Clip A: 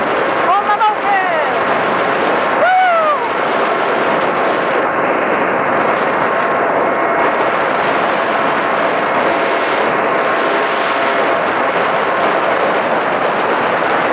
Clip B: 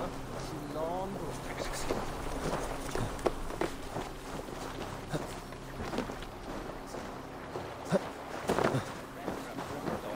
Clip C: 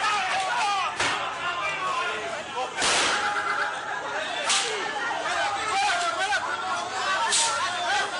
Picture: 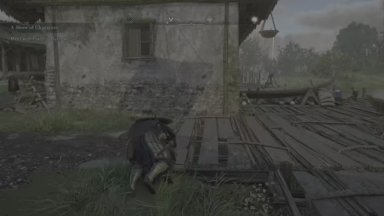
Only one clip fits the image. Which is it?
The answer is B